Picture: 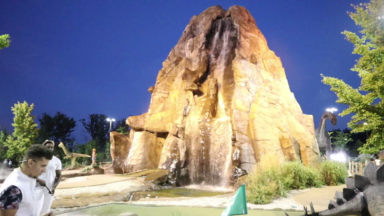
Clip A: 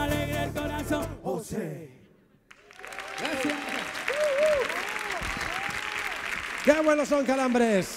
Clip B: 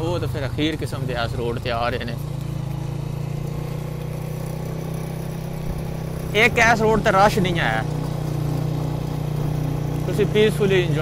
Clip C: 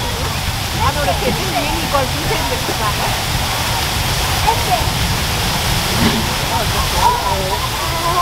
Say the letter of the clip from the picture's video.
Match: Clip C